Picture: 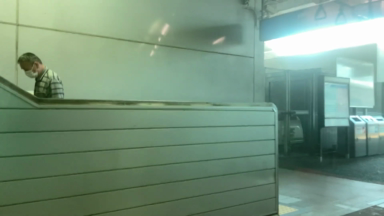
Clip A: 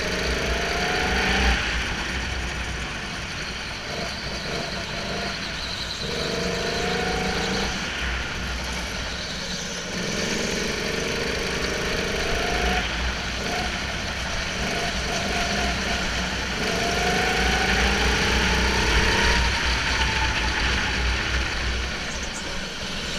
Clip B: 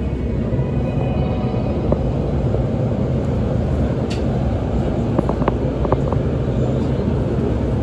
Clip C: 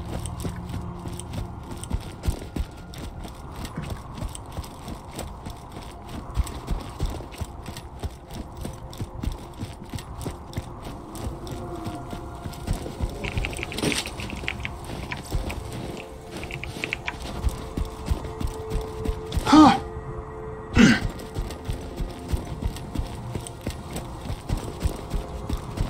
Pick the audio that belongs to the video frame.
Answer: B